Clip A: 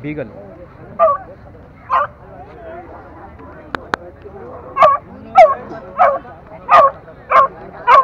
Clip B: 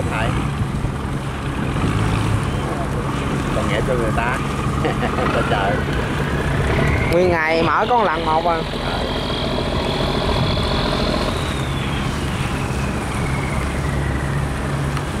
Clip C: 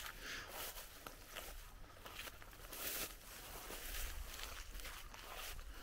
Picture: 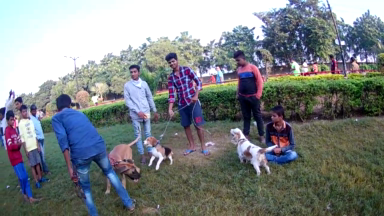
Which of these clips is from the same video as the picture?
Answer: A